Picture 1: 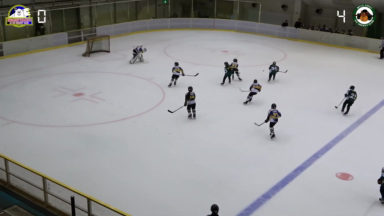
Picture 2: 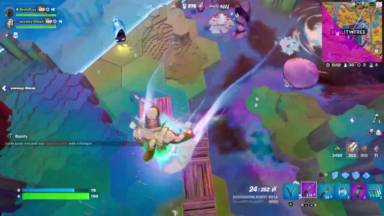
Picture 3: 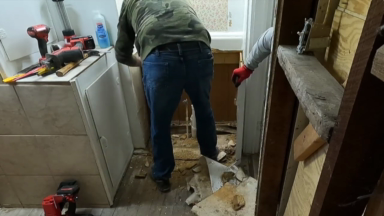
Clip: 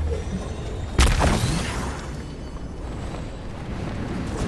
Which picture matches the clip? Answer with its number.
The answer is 2